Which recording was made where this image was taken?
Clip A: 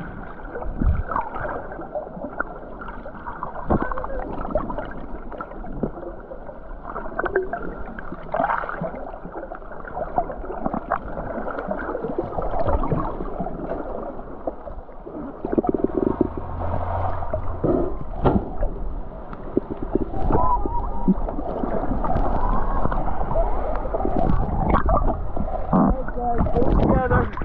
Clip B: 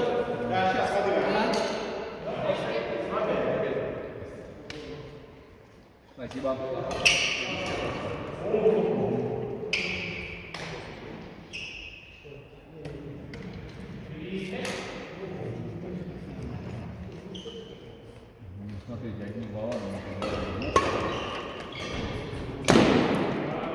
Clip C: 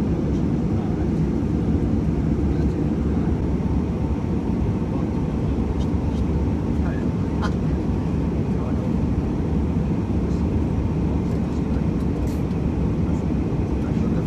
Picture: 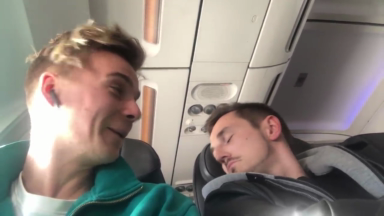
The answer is C